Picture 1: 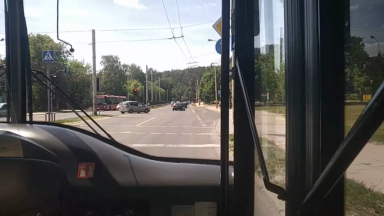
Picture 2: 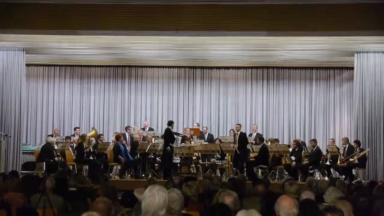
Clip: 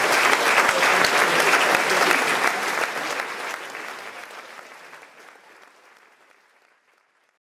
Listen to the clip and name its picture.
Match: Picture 2